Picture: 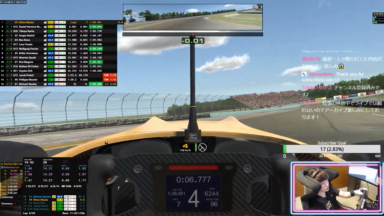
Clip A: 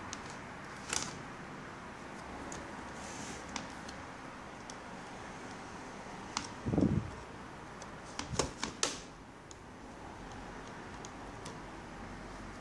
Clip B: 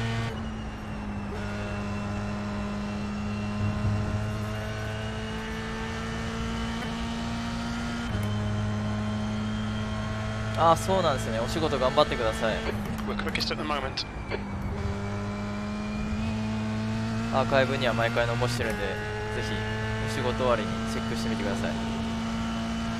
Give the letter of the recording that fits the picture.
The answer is B